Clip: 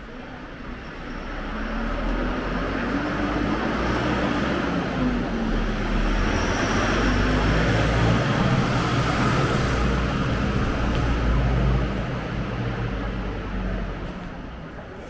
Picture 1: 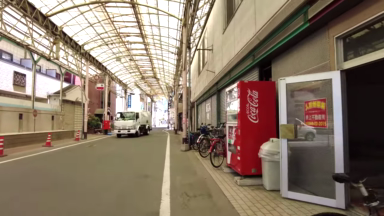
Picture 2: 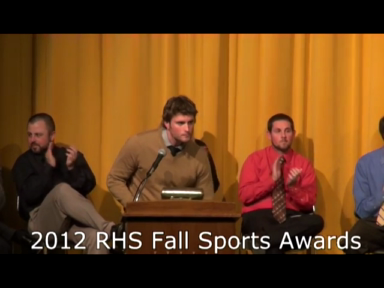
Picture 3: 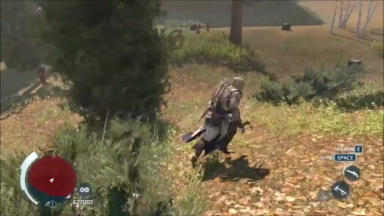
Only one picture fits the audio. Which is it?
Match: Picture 1